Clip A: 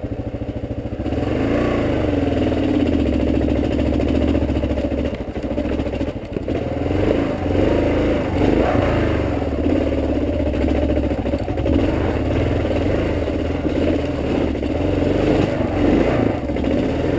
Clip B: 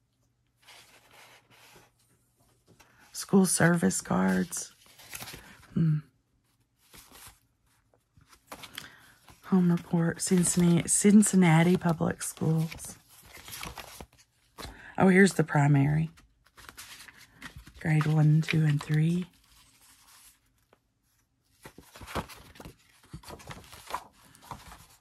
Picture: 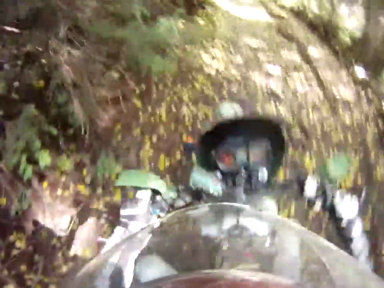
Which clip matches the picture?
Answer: A